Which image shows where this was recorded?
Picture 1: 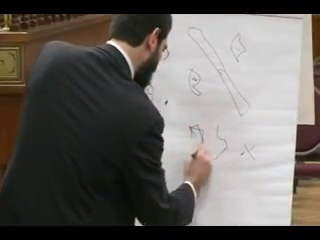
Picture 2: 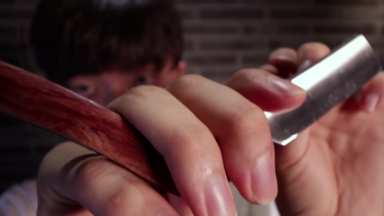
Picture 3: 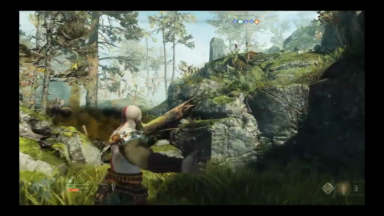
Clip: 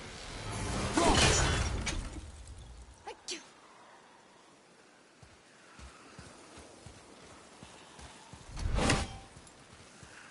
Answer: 3